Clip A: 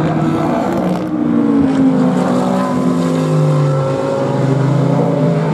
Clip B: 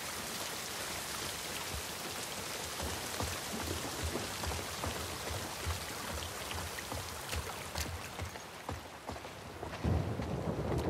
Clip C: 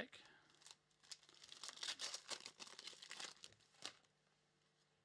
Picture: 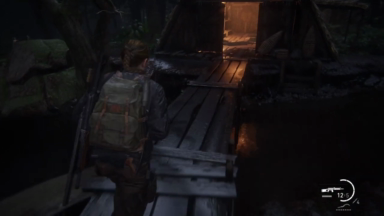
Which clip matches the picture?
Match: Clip B